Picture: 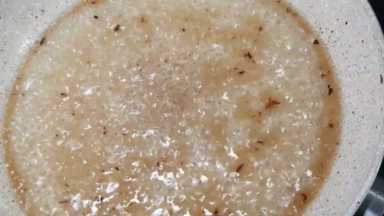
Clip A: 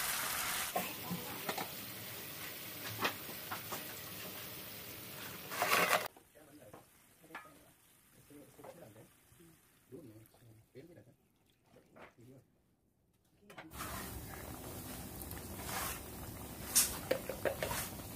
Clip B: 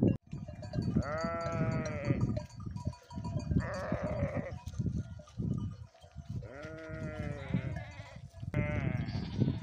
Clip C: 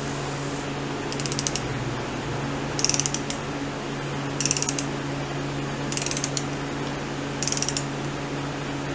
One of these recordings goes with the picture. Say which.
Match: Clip A